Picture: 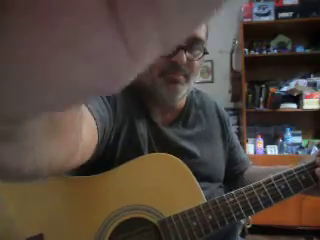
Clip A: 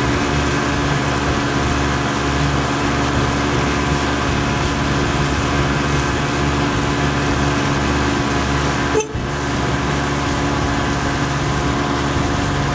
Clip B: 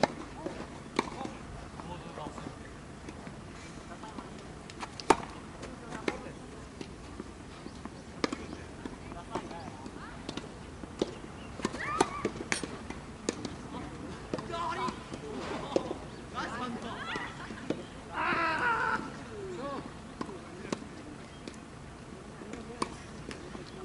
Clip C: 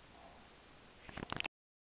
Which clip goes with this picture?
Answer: C